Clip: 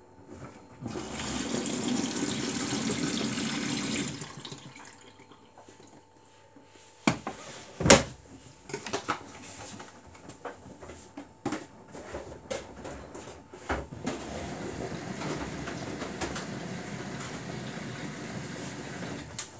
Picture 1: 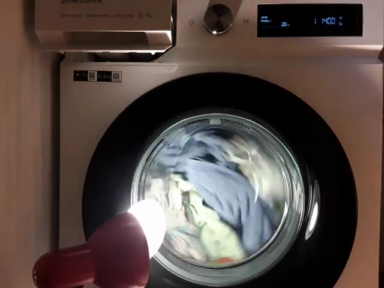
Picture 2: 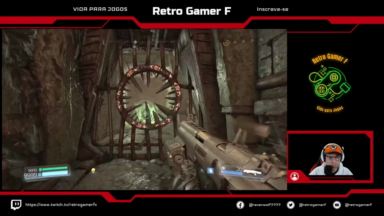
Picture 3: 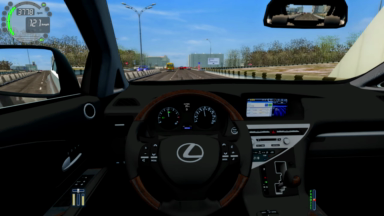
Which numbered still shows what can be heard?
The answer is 1